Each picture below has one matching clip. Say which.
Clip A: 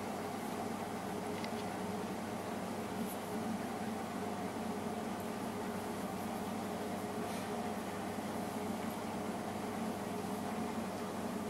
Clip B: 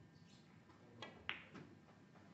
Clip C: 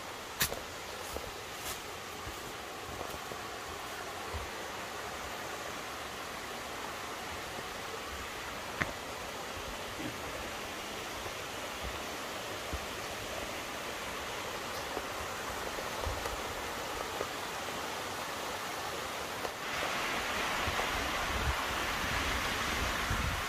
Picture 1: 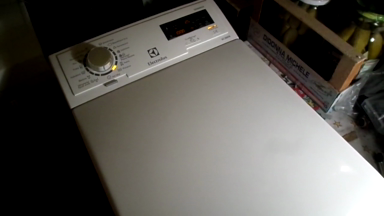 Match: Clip A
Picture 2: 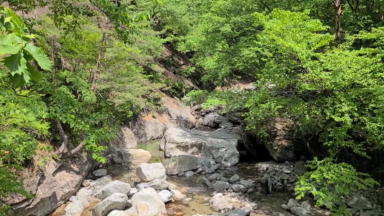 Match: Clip C